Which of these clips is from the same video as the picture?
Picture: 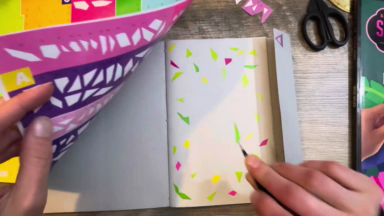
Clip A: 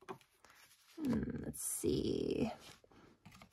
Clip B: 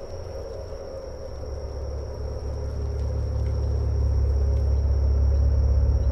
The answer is A